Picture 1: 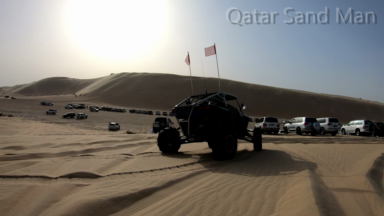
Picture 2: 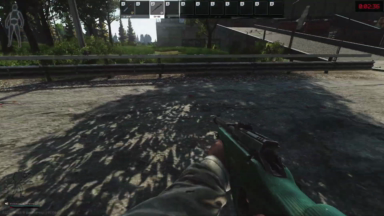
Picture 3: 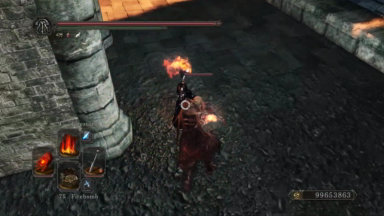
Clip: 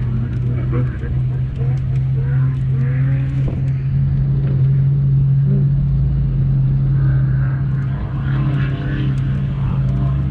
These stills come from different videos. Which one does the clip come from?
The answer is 1